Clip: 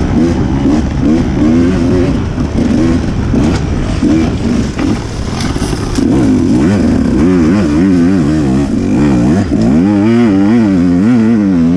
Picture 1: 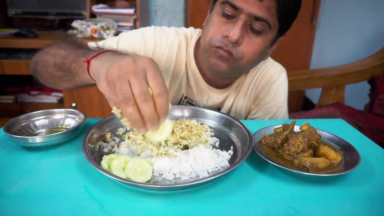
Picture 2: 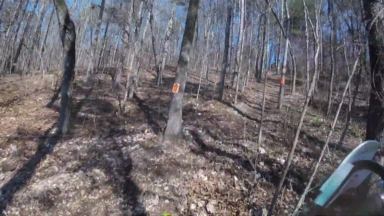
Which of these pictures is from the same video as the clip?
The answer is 2